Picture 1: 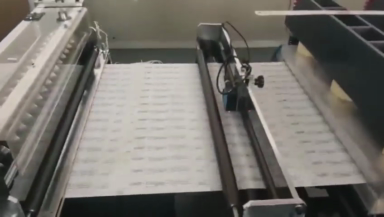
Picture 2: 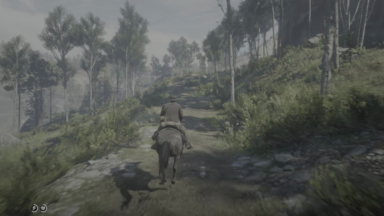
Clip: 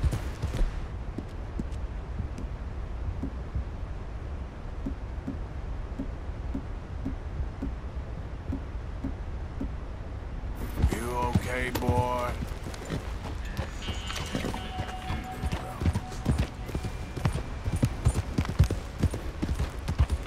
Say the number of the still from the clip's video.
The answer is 2